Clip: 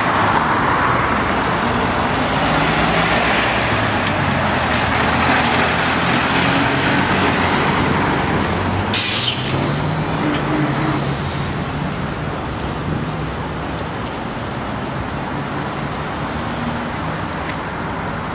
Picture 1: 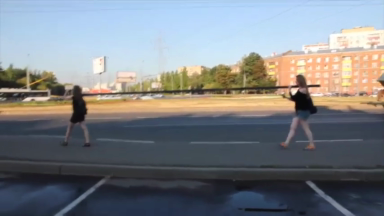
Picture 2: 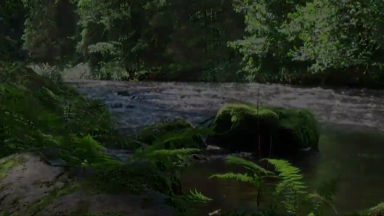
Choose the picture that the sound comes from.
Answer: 1